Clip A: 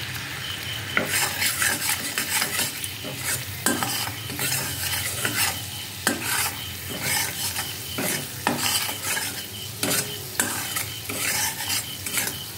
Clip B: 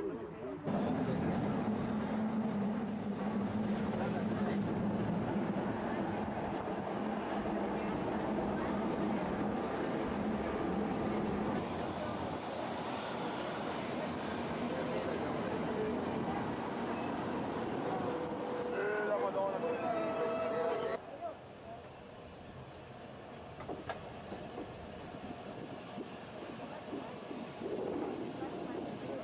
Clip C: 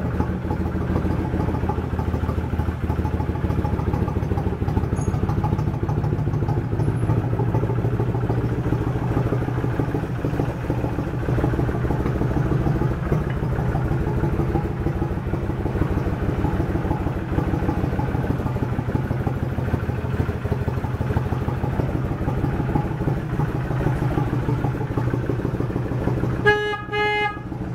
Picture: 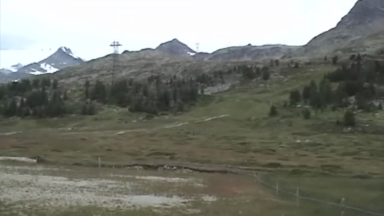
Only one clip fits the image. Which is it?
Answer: B